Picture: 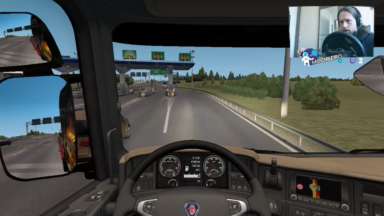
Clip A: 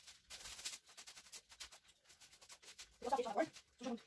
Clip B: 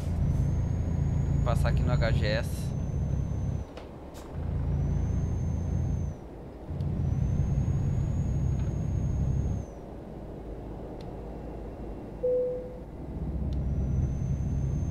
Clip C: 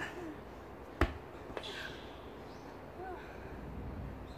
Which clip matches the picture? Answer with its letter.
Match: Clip B